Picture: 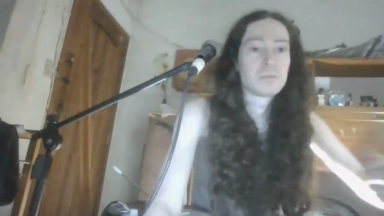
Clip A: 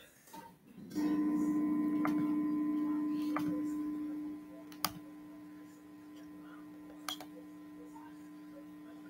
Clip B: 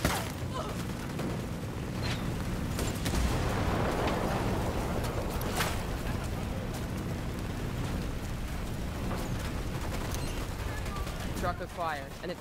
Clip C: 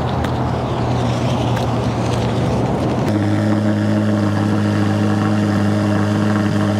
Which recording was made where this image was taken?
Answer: A